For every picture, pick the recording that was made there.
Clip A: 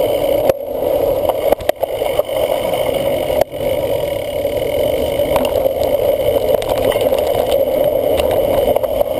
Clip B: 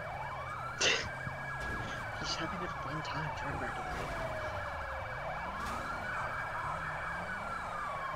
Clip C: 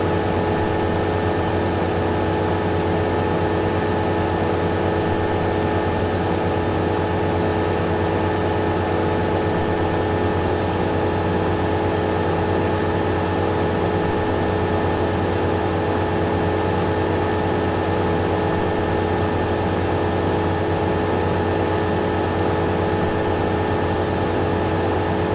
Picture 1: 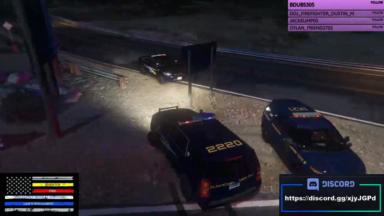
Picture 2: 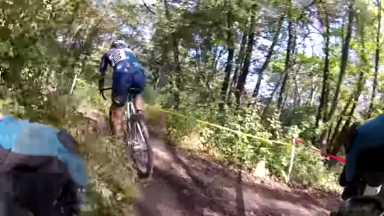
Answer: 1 B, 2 A